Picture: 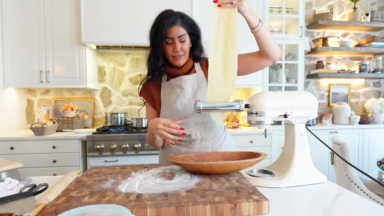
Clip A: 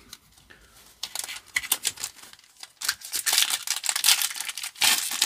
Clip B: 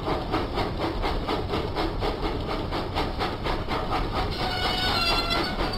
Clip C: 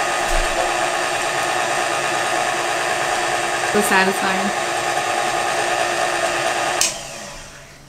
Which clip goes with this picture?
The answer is C